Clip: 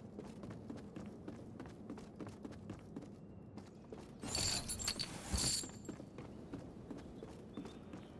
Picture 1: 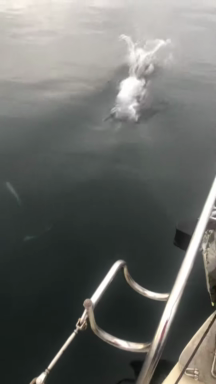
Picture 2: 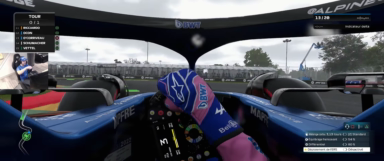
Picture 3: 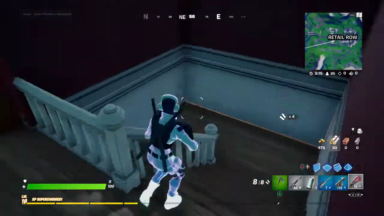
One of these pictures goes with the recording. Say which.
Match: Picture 3